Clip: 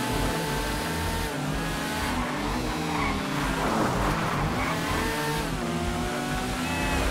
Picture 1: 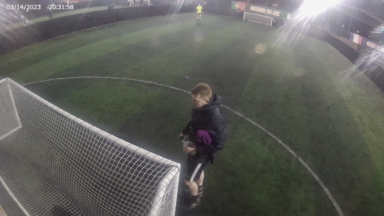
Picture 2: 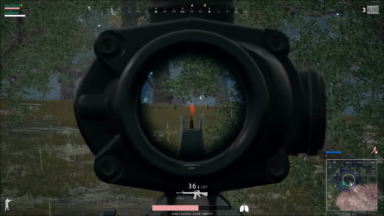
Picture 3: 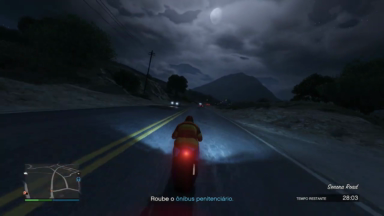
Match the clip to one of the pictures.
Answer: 3